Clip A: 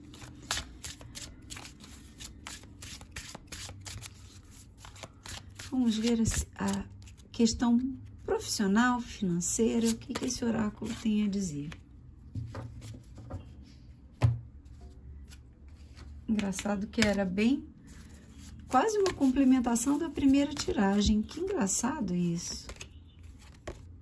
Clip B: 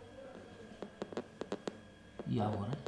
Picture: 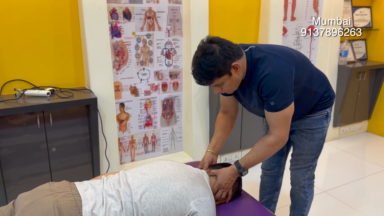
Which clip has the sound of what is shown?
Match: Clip B